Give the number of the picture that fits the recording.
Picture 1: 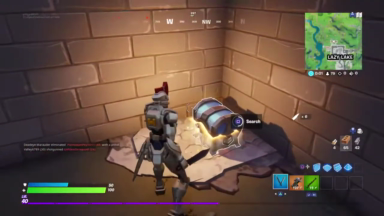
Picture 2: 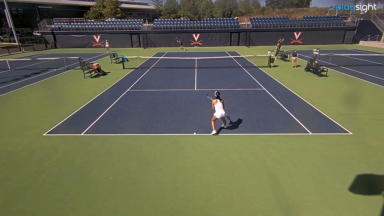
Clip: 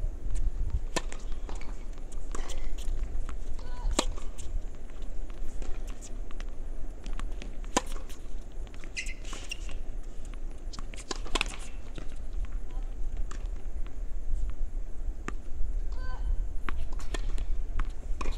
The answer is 2